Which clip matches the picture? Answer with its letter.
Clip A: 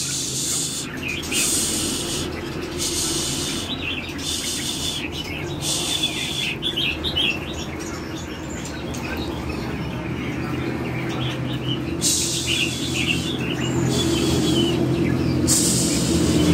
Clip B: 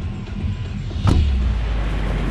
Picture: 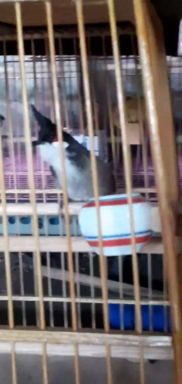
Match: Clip A